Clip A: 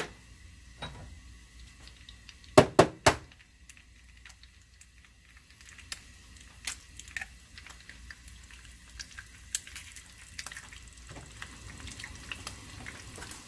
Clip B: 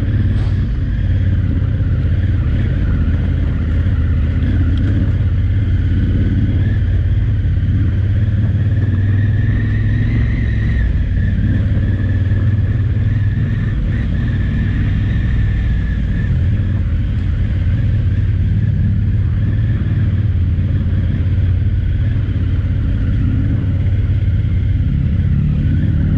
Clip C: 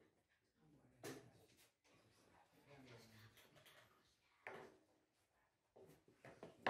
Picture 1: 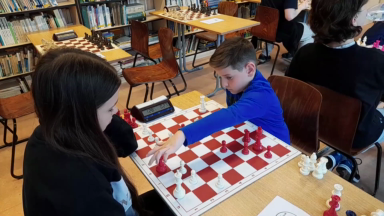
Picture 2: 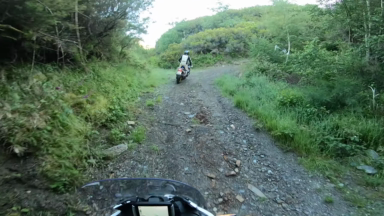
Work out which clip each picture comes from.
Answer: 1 C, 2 B